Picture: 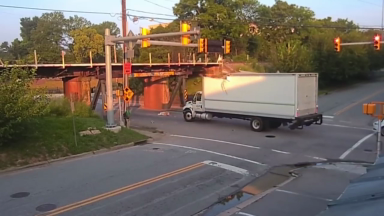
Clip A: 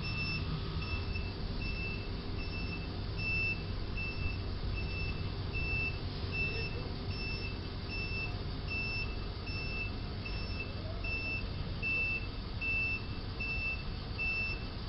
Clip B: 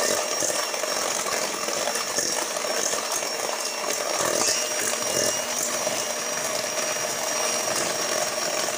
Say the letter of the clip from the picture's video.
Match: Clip A